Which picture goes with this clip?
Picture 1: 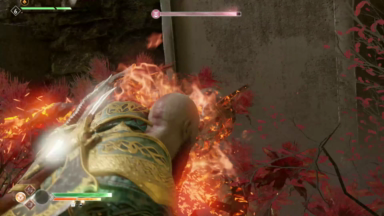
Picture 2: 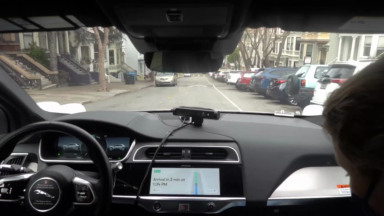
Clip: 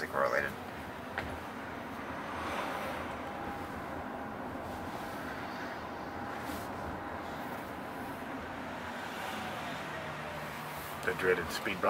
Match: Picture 2